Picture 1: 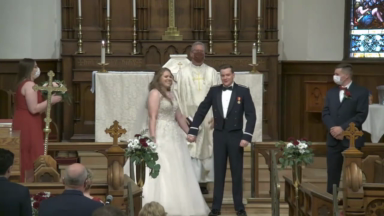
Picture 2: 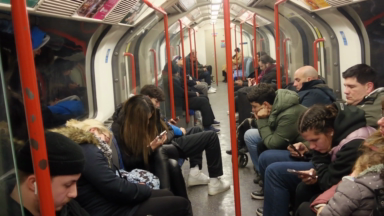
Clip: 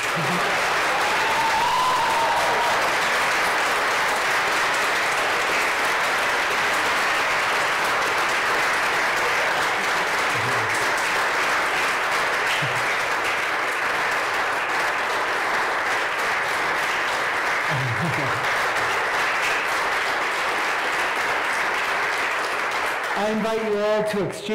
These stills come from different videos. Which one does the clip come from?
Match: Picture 1